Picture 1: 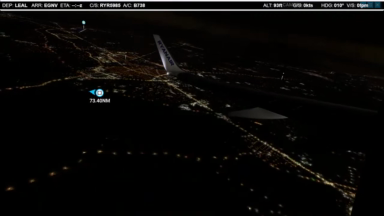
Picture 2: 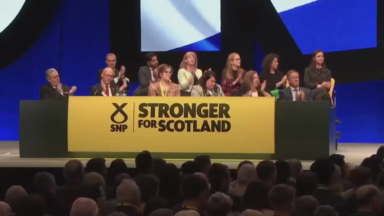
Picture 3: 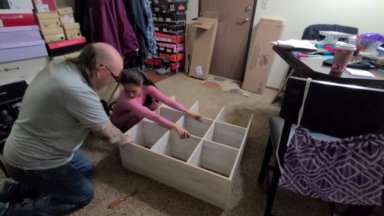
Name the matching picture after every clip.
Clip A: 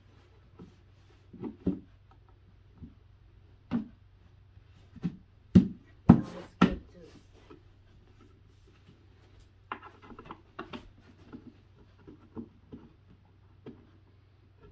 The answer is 3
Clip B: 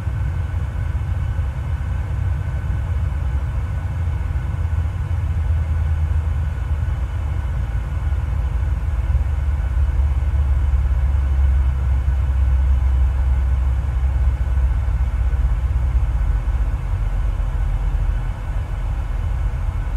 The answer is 1